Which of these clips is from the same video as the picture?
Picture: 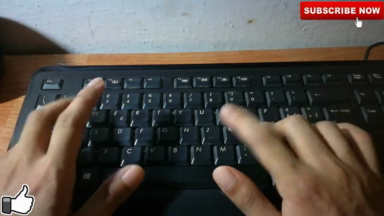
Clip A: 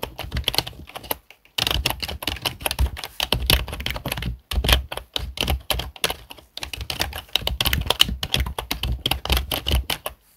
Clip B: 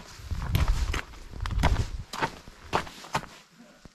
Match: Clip A